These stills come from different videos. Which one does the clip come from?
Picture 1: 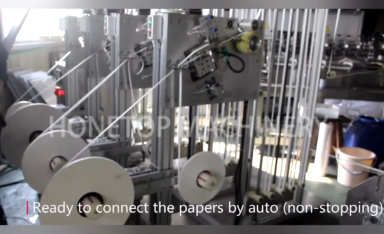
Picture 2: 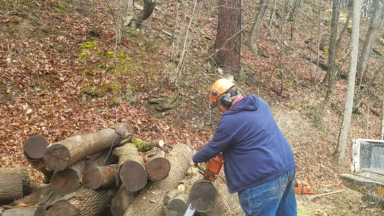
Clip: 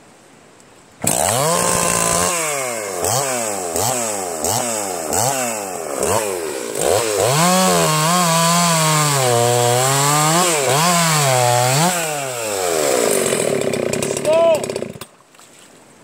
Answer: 2